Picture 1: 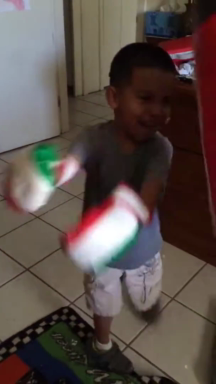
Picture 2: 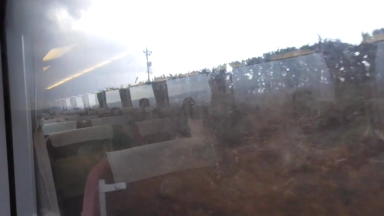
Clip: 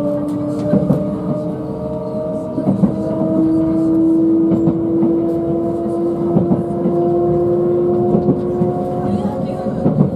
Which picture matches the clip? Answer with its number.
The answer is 2